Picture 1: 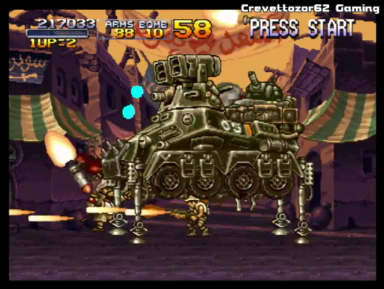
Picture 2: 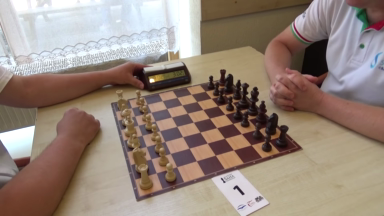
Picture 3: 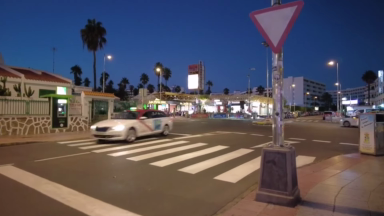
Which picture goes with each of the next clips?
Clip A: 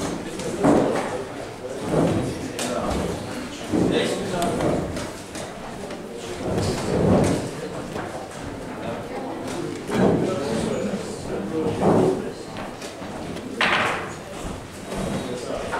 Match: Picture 2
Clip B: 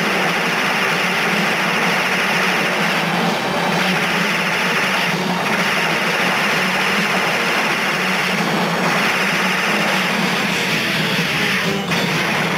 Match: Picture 1